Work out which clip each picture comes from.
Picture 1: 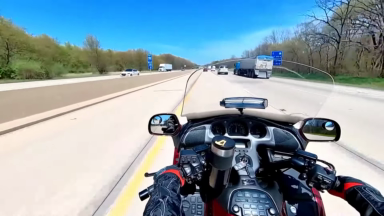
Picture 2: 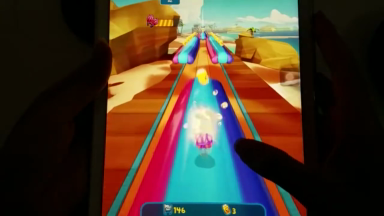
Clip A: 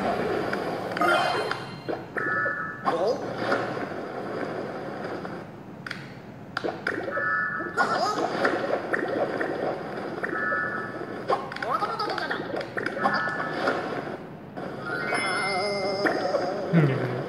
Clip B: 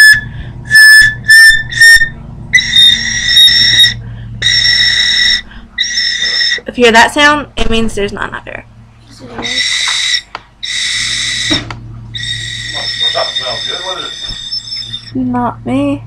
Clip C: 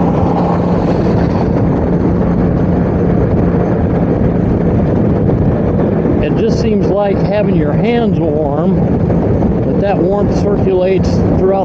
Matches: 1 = C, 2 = A